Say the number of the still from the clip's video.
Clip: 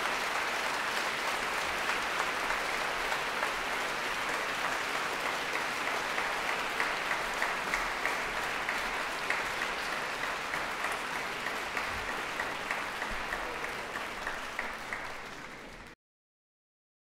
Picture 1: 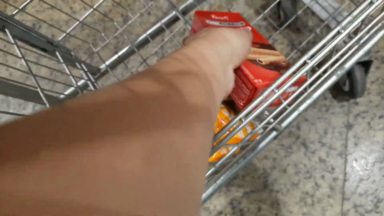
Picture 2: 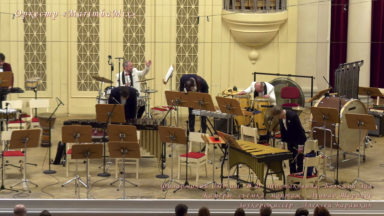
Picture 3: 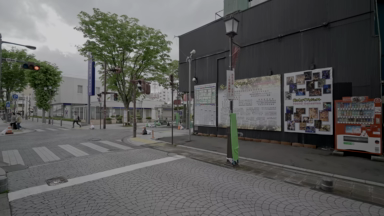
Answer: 2